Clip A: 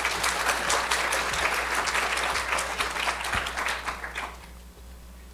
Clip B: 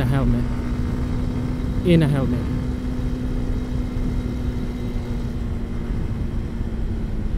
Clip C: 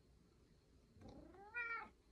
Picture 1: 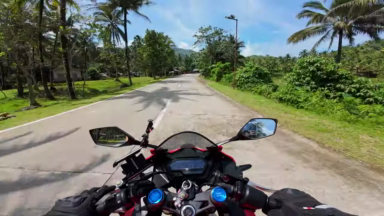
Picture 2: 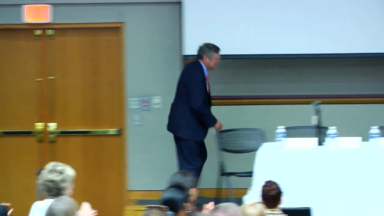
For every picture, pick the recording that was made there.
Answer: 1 B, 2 A